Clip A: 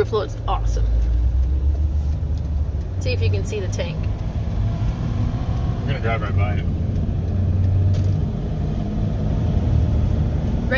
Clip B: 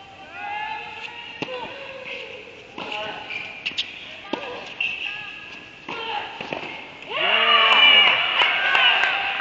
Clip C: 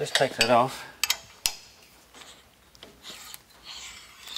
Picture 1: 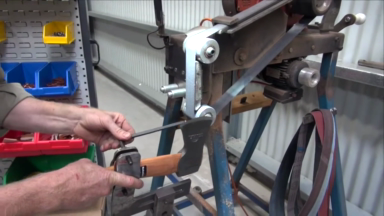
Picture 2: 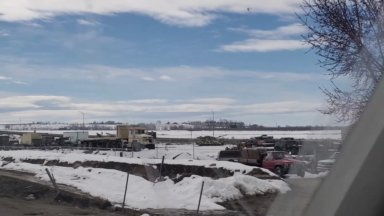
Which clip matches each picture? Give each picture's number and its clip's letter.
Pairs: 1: C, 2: A